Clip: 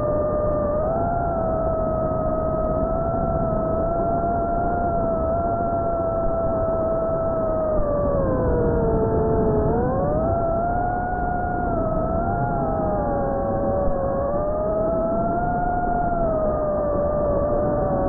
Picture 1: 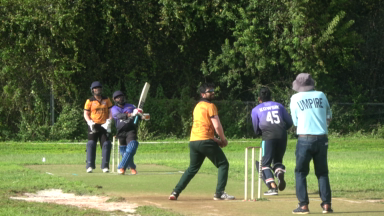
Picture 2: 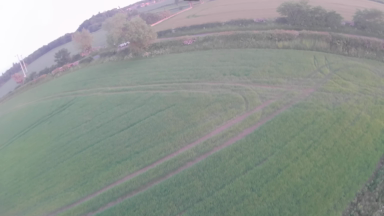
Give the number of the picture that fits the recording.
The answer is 2